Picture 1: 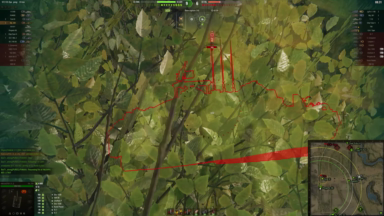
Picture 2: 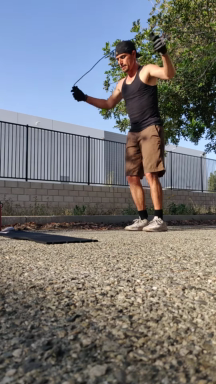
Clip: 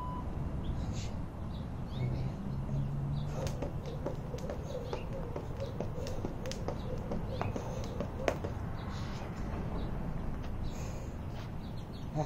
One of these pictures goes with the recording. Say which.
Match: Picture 2